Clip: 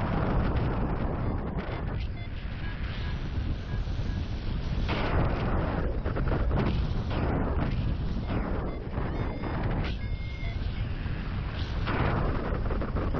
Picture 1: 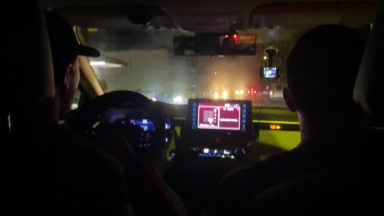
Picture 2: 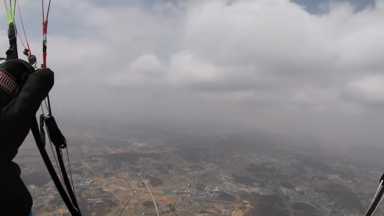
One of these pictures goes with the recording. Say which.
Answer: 2